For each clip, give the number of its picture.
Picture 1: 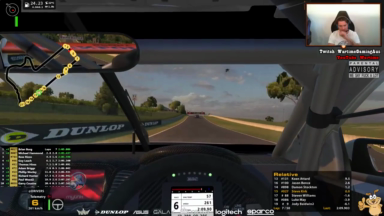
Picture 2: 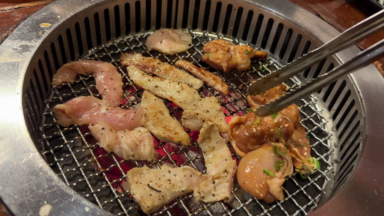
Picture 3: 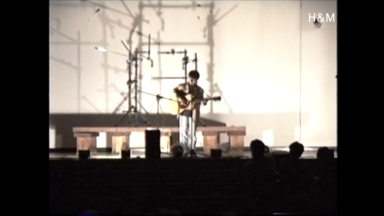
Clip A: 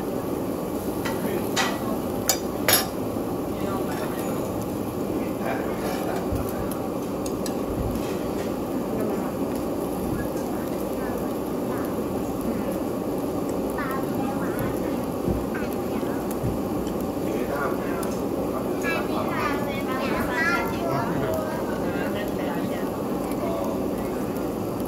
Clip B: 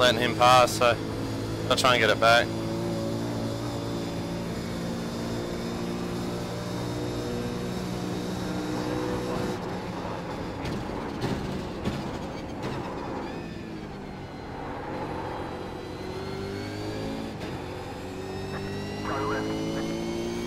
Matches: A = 2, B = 1